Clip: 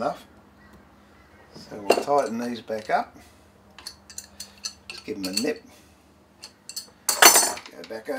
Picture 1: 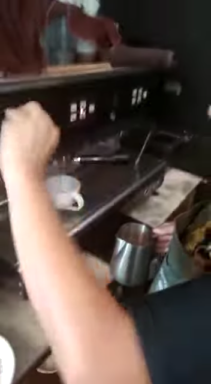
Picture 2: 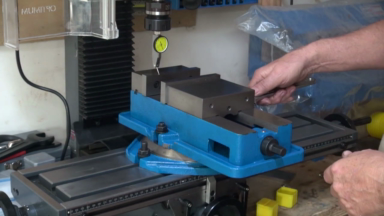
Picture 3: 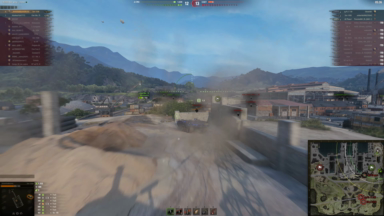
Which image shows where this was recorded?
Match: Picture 2